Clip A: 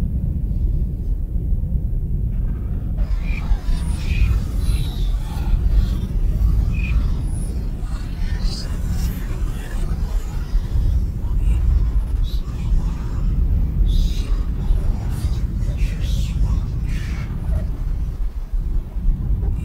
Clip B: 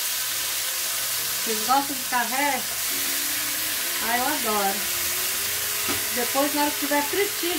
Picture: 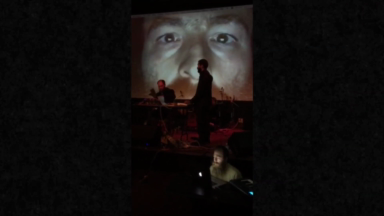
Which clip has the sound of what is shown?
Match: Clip A